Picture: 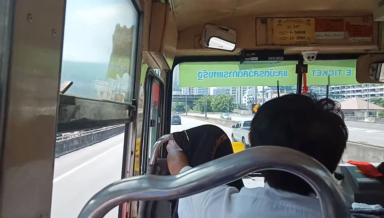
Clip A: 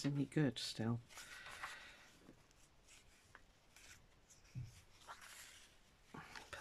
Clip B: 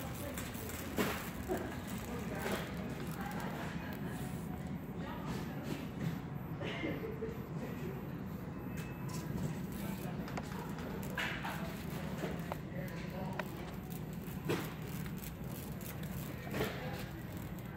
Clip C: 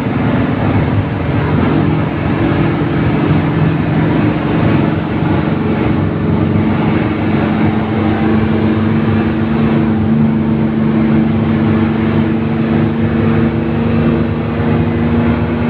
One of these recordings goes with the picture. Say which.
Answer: C